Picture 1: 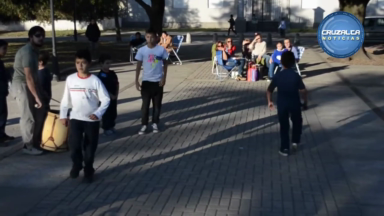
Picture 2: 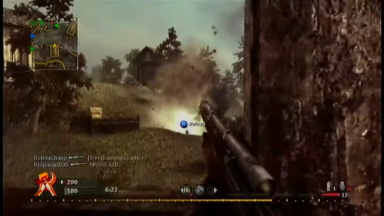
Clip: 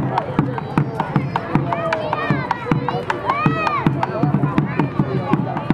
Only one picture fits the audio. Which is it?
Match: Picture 1